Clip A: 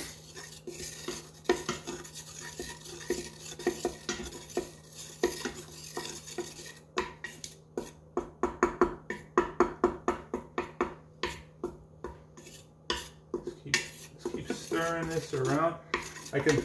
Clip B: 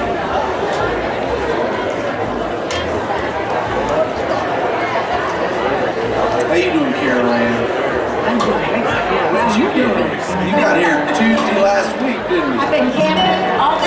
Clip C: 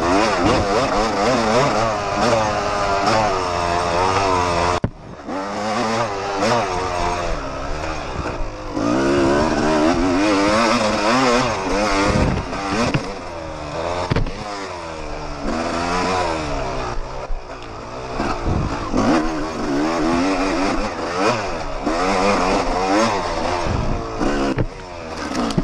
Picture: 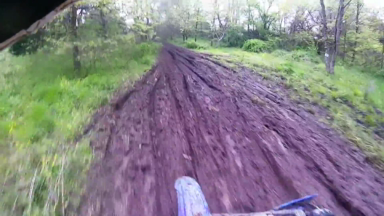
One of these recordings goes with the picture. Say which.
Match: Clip C